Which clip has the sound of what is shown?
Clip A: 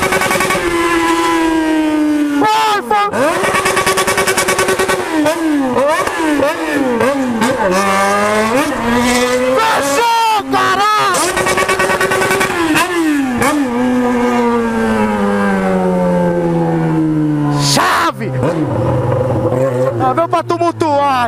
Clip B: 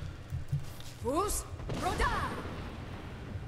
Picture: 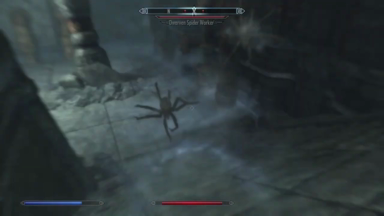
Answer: B